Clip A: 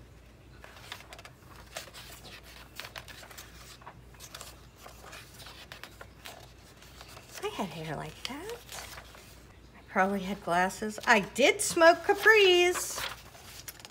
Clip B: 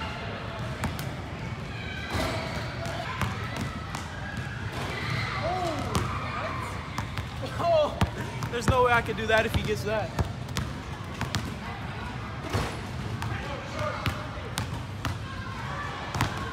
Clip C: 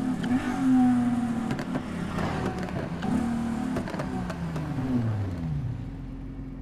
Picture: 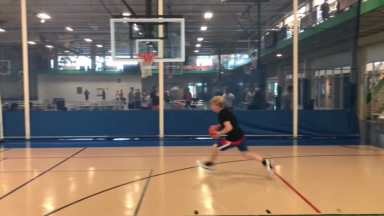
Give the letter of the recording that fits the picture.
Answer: B